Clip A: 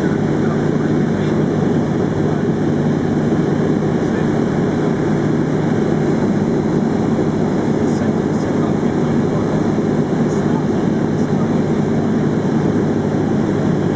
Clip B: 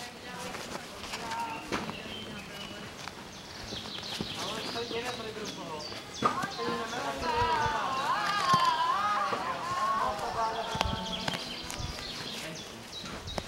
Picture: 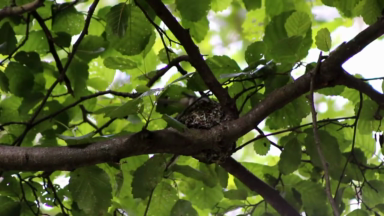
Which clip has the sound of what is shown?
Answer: B